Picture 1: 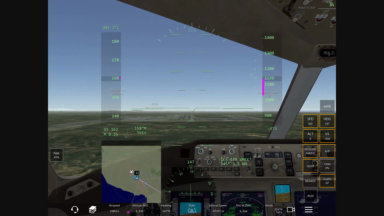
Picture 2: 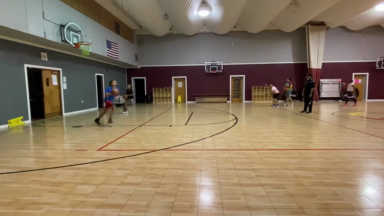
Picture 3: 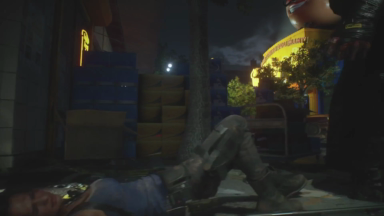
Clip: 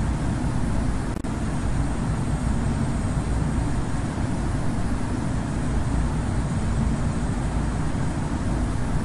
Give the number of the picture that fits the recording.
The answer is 1